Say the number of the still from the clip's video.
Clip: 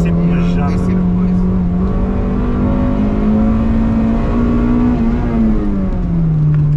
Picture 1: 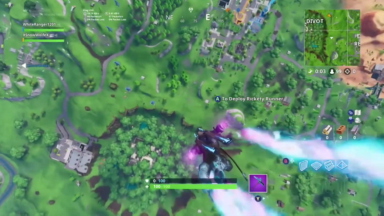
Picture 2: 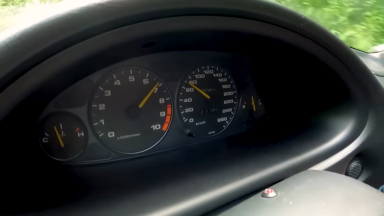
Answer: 2